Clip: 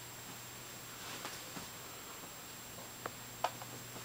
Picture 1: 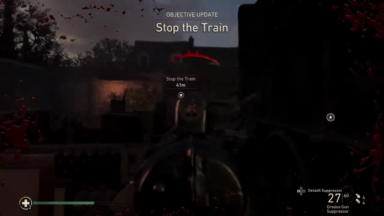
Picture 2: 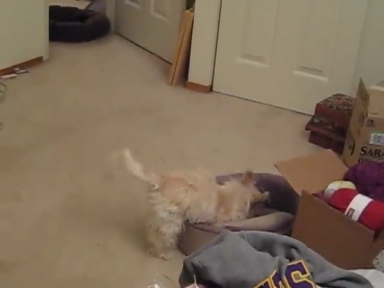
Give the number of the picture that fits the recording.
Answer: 2